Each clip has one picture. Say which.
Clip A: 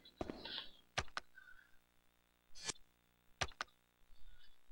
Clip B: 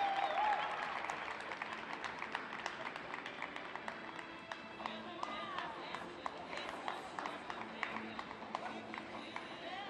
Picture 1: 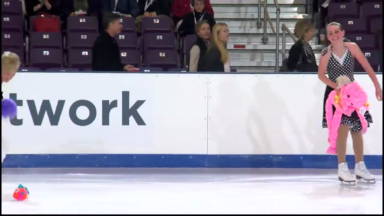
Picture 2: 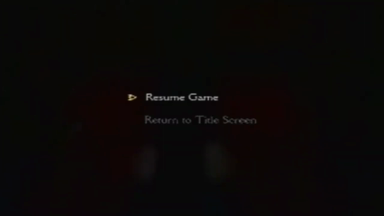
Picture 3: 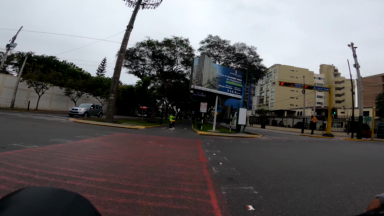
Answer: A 2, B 1